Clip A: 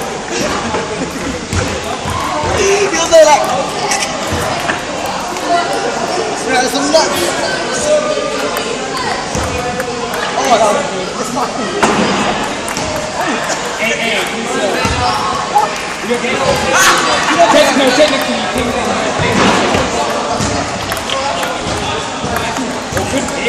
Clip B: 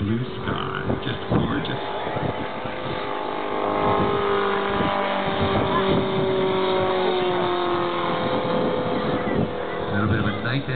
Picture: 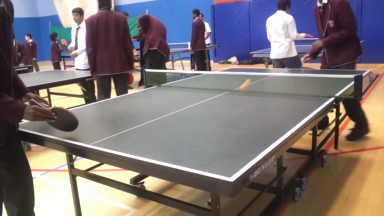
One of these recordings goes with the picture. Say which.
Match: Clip A